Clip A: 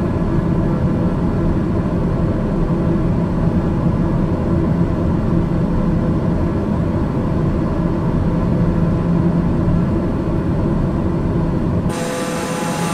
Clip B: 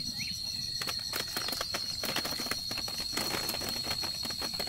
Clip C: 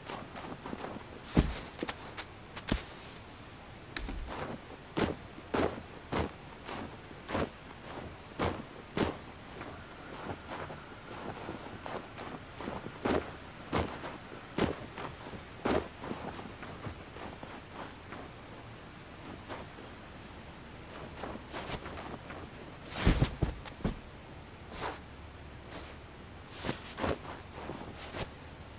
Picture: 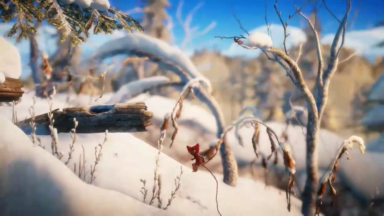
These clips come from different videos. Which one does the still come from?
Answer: C